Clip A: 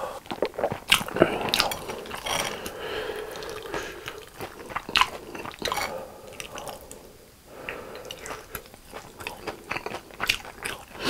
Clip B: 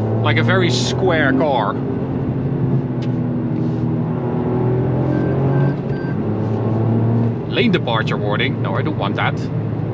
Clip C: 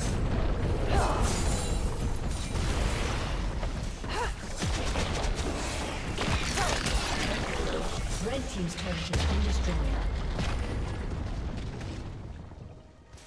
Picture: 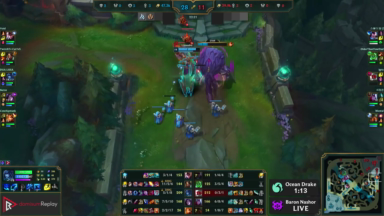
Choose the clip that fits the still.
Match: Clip C